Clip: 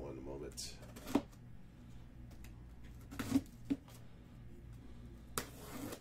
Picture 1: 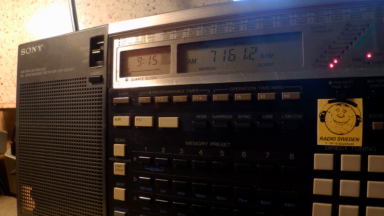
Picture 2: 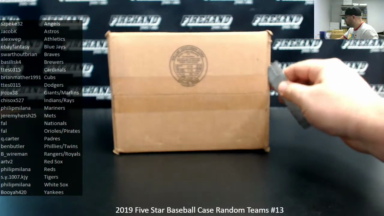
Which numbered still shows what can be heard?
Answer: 2